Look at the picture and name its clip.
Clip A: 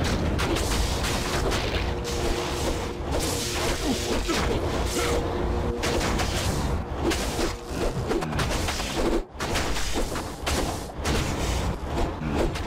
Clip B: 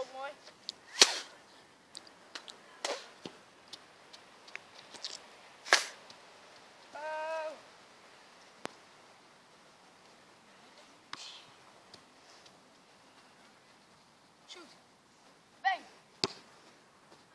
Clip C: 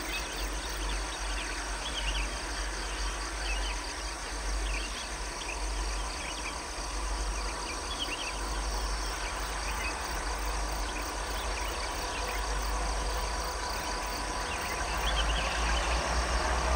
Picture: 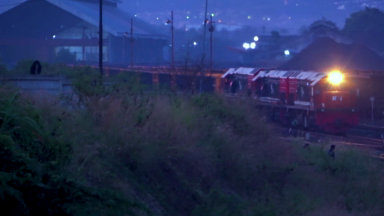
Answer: C